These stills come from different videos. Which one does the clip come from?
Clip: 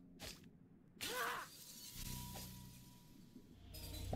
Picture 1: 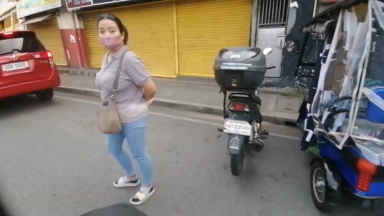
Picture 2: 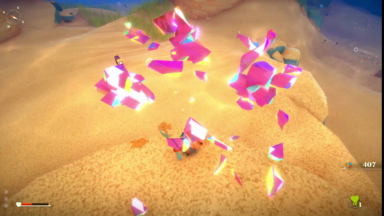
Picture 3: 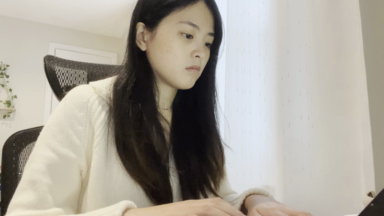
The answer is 2